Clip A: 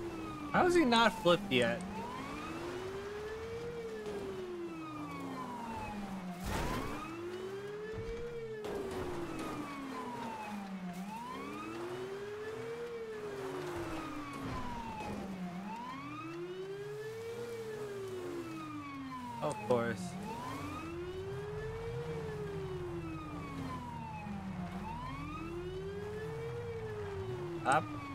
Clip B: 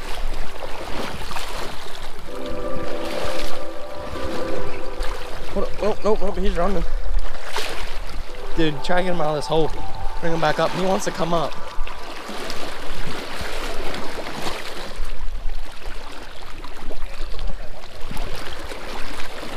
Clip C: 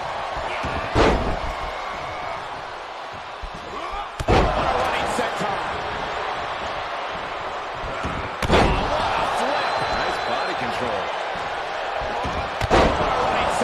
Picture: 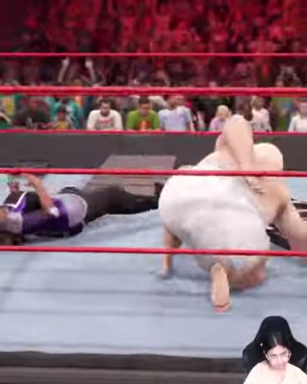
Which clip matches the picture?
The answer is C